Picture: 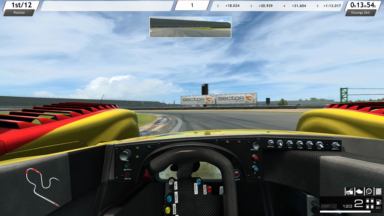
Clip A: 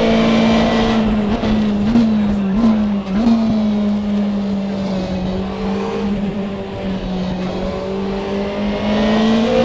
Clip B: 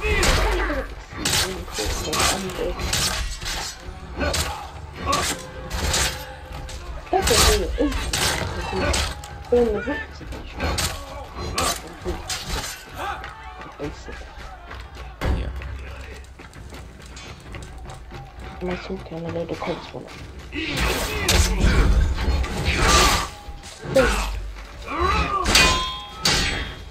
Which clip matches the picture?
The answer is A